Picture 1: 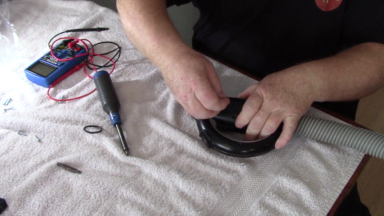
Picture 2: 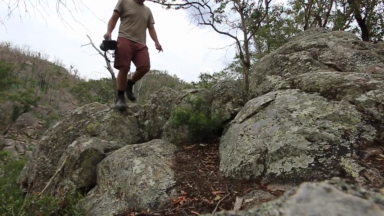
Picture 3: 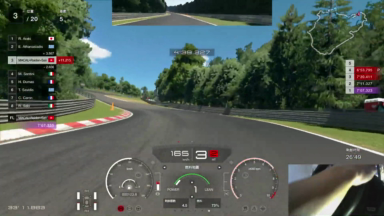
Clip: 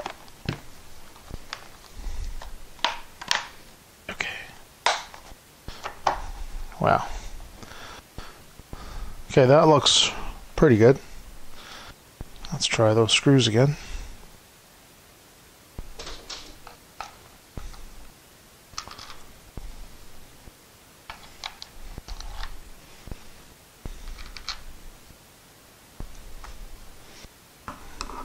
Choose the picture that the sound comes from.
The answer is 1